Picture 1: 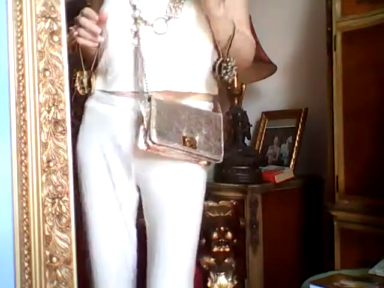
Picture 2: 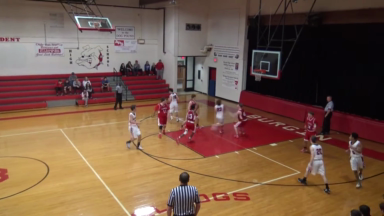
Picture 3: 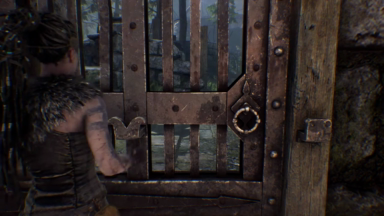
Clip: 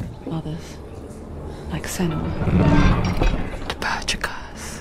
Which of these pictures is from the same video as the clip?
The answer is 3